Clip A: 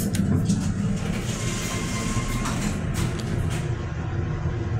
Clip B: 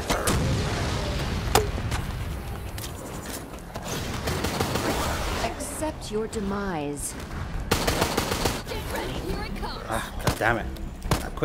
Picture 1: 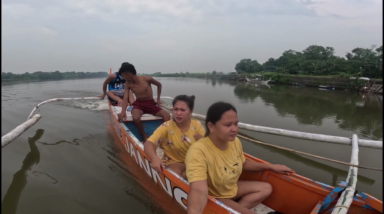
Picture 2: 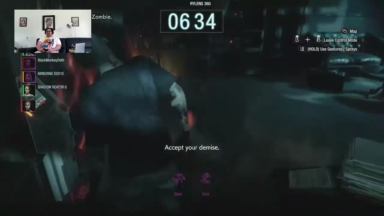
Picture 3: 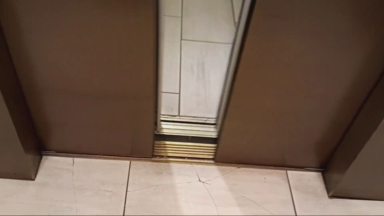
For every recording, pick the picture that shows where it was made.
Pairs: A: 3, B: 2